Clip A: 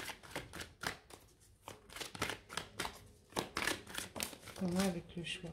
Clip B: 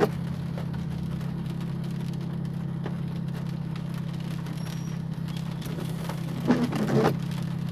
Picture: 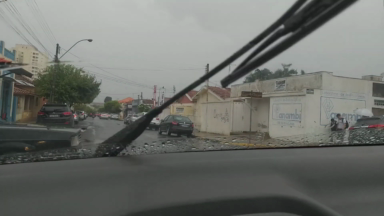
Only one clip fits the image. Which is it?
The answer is B